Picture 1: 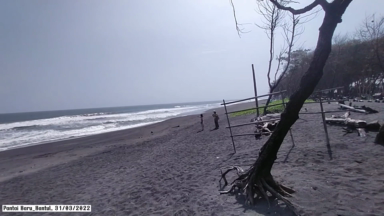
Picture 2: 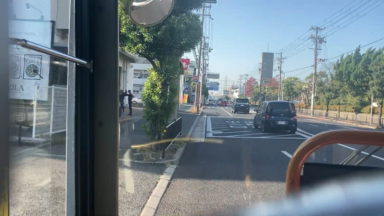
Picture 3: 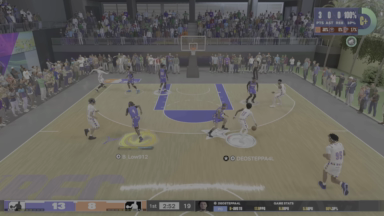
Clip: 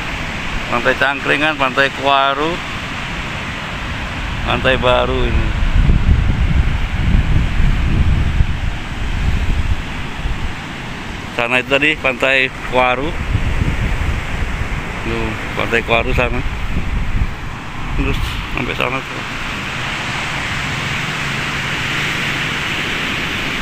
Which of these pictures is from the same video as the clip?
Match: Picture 1